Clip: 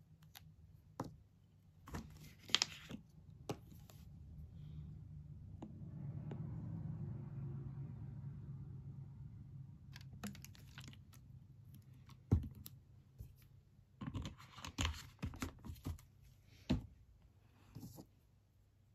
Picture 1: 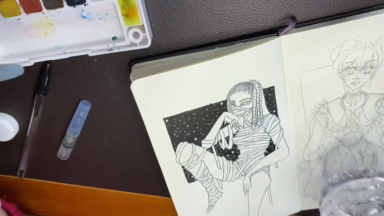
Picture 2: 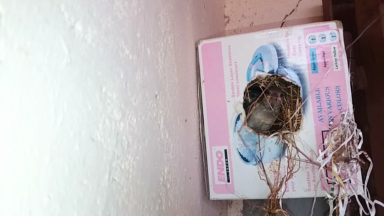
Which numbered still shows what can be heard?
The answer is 1